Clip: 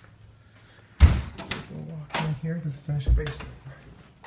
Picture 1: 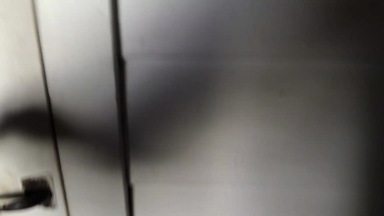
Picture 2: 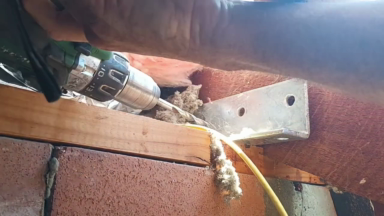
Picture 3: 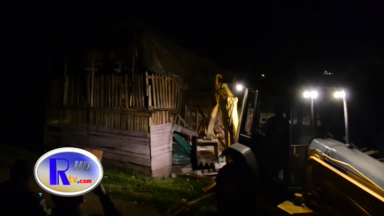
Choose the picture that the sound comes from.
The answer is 1